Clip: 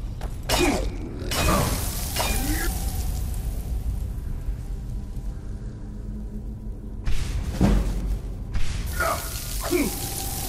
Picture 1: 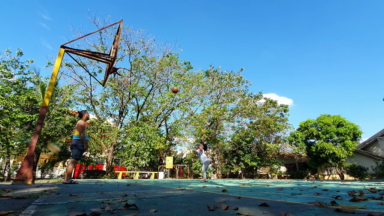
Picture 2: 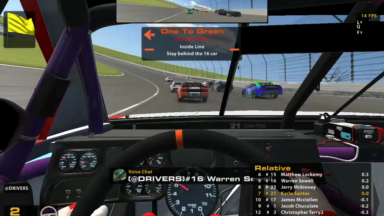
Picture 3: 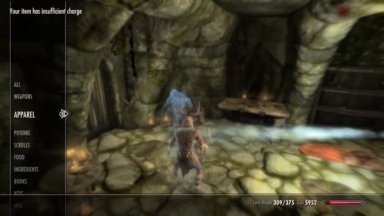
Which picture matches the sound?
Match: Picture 3